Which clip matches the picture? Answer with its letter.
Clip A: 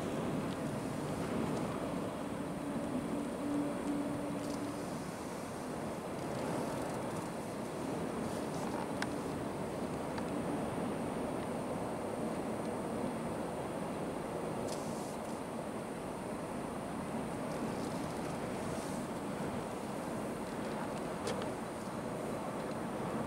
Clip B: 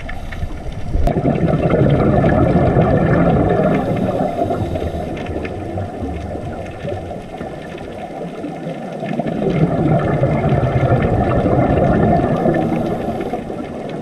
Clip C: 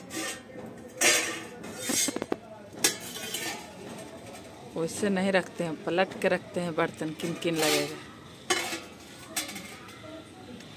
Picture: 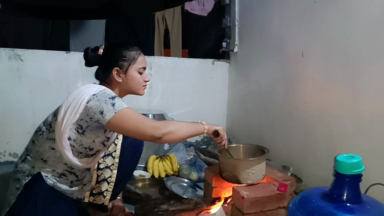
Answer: C